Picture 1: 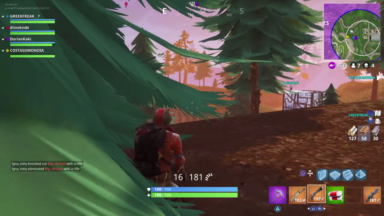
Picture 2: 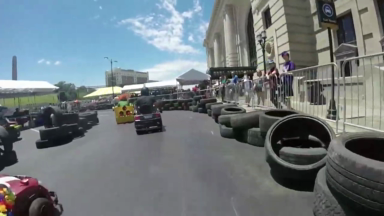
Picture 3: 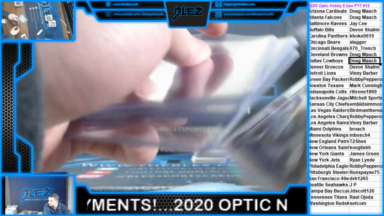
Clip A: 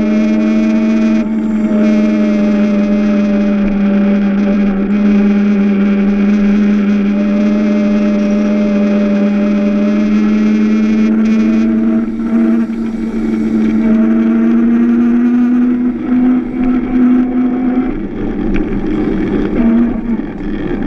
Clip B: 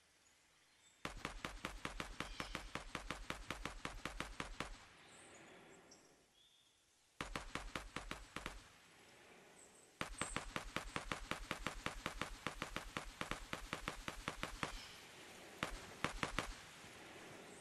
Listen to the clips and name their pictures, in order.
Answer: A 2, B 1